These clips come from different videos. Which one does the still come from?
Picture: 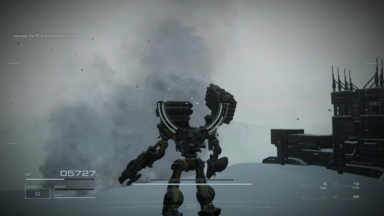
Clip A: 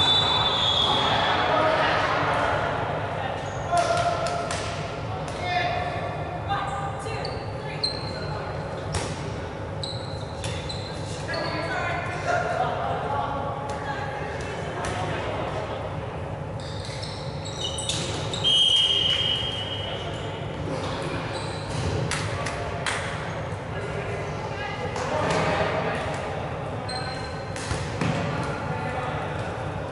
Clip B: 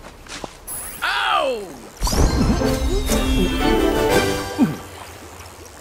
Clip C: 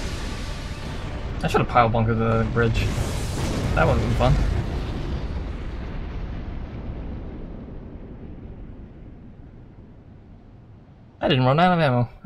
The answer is C